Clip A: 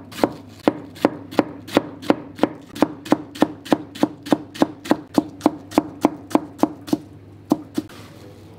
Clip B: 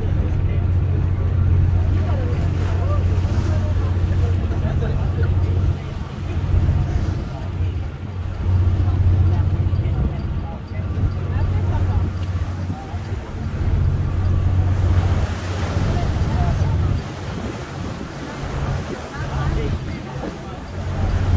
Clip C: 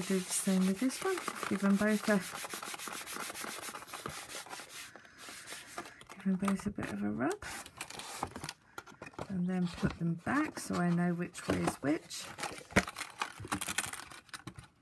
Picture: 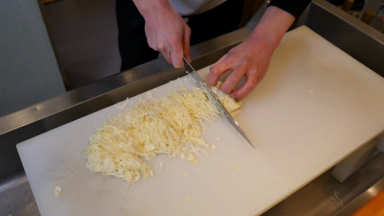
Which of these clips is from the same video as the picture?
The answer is A